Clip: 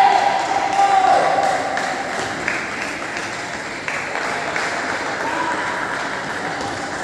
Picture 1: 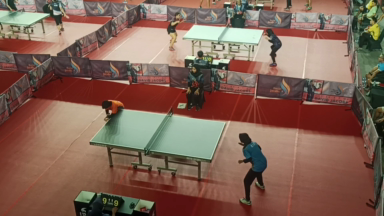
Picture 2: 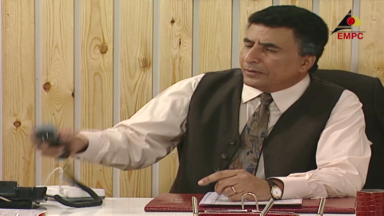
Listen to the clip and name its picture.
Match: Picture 1